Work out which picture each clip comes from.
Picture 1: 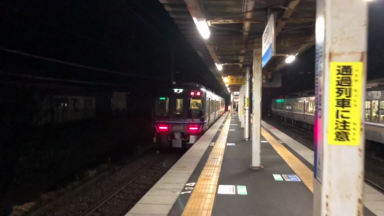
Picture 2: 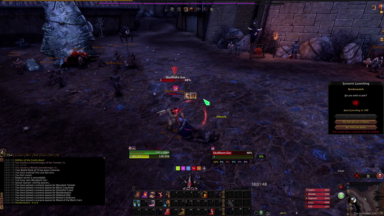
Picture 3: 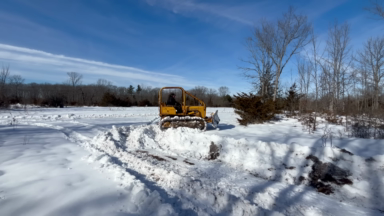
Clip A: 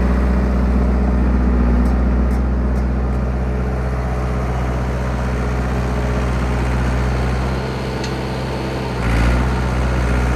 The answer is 3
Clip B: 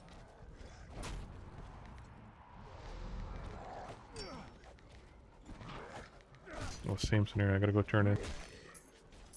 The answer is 2